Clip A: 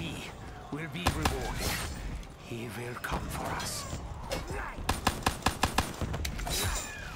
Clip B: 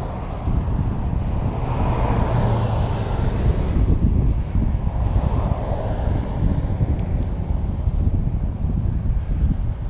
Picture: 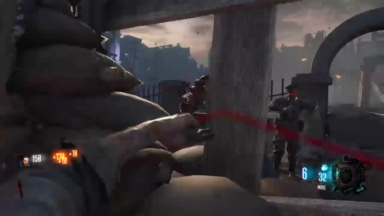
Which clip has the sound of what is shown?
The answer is A